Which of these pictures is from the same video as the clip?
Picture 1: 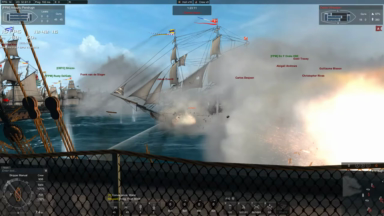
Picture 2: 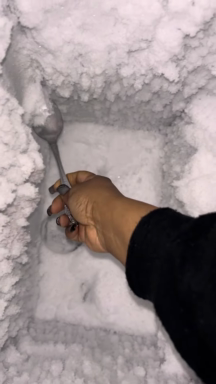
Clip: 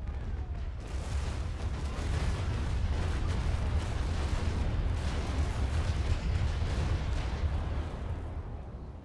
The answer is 1